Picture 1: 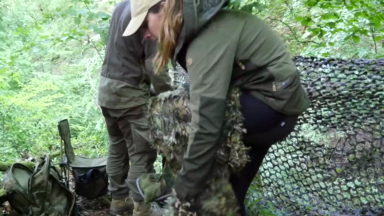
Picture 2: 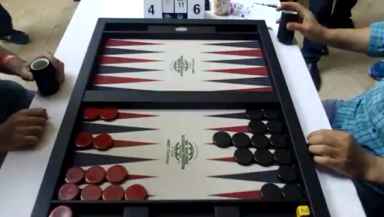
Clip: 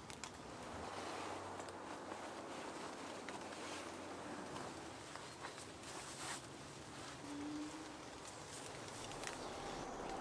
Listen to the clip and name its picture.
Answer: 1